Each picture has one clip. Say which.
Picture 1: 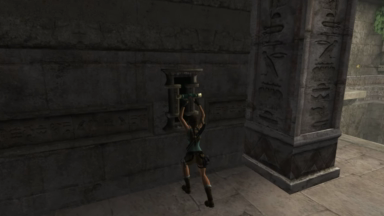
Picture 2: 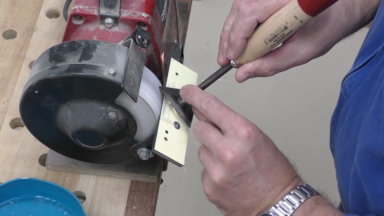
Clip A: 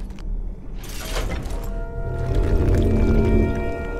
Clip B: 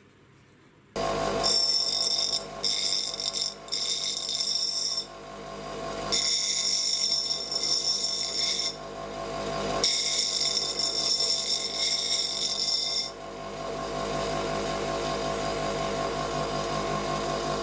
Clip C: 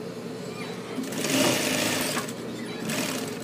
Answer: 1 A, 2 B